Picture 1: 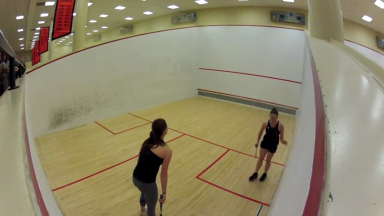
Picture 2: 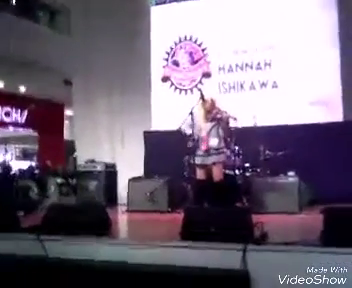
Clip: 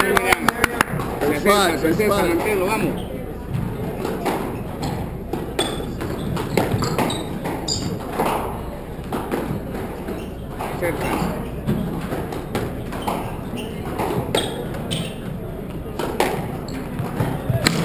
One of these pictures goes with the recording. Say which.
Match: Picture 1